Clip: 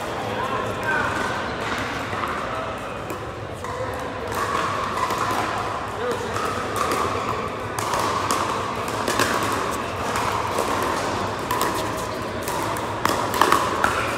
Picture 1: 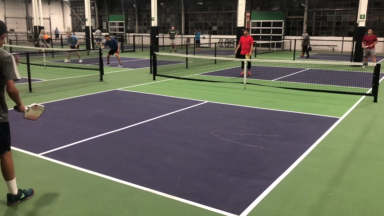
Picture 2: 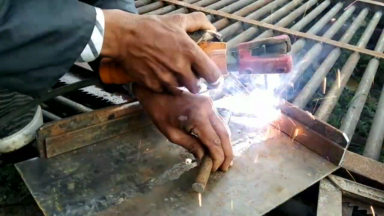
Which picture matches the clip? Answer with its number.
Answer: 1